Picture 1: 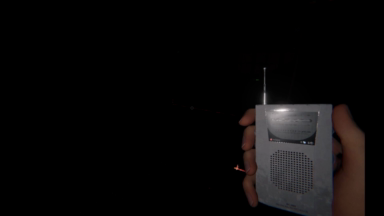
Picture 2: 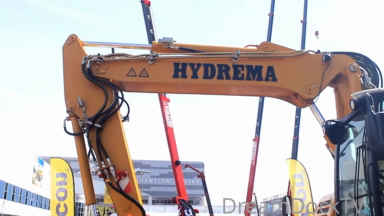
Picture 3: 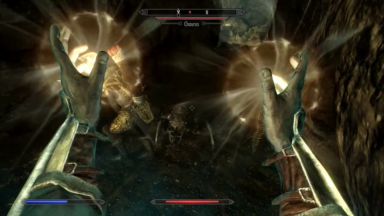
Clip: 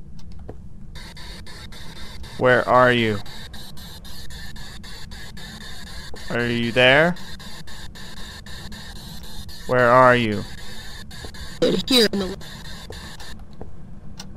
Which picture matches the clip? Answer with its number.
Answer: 1